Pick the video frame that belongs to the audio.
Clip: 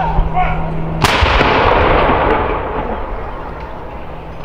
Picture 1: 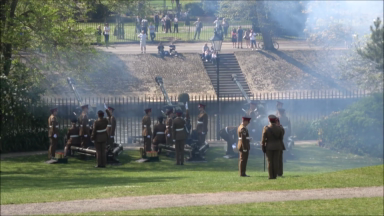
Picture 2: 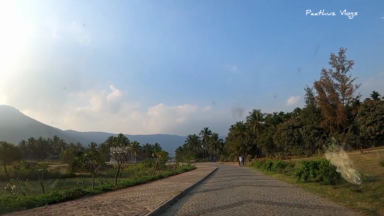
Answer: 1